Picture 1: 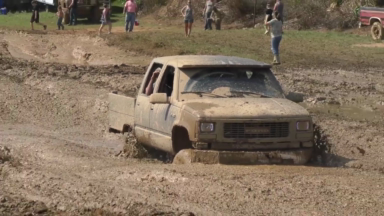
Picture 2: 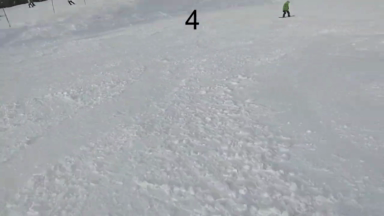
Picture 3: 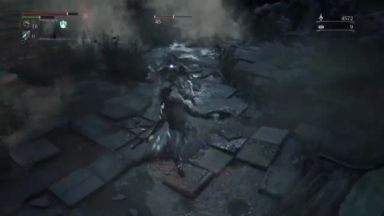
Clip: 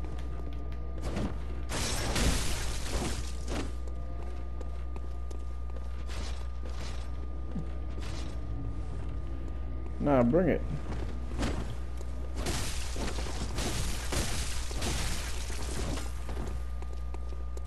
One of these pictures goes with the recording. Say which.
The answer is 3